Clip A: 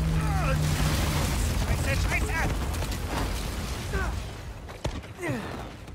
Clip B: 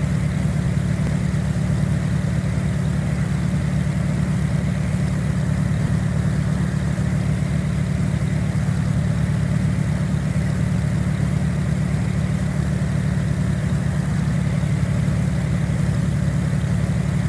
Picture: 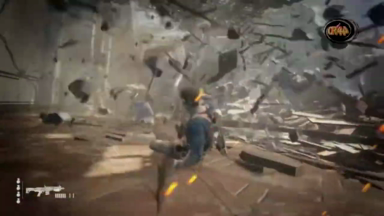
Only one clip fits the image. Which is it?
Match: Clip A